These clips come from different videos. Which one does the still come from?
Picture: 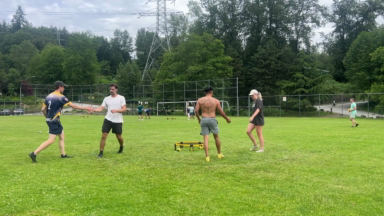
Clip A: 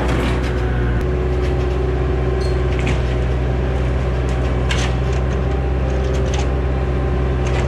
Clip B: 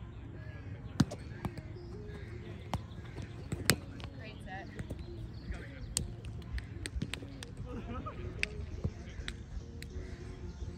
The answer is B